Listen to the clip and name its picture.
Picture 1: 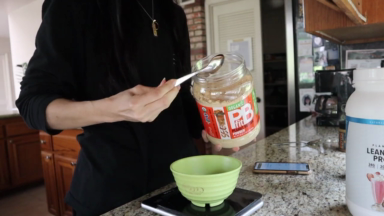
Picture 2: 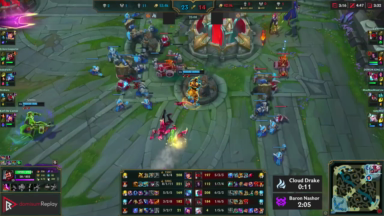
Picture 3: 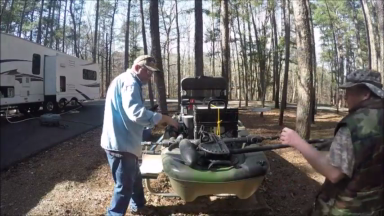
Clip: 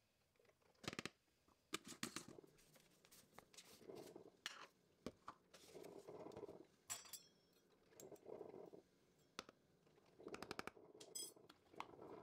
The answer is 1